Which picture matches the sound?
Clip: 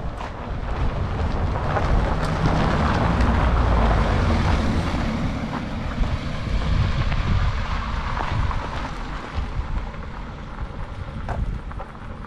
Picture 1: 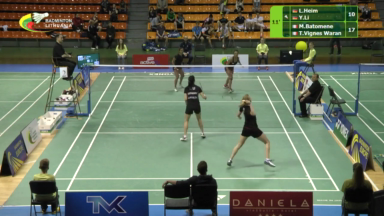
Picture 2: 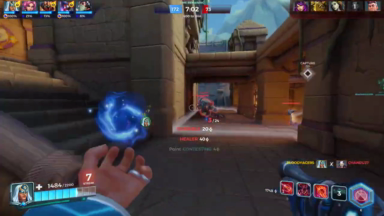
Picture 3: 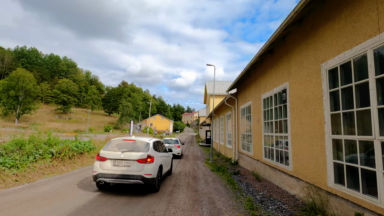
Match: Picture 3